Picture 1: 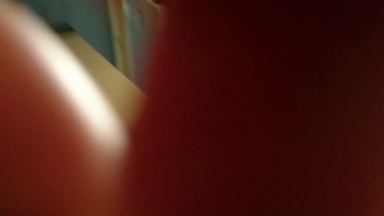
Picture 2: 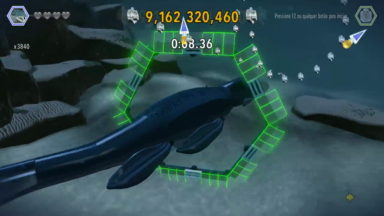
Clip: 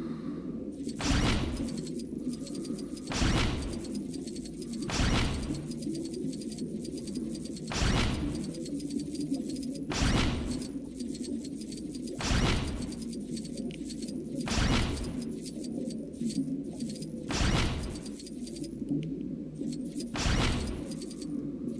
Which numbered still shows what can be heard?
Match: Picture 2